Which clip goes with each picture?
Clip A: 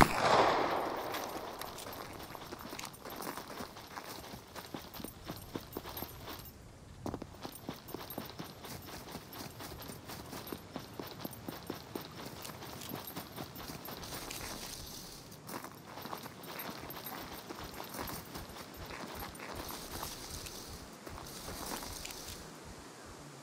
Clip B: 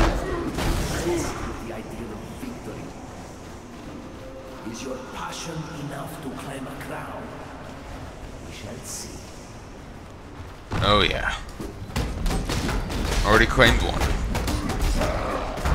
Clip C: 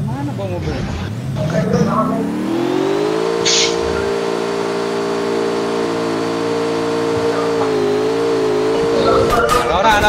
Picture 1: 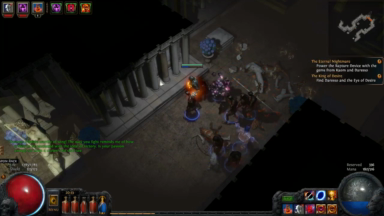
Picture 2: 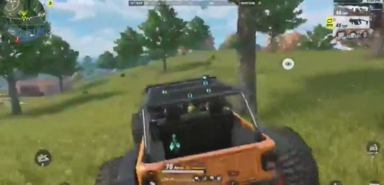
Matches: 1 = B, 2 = C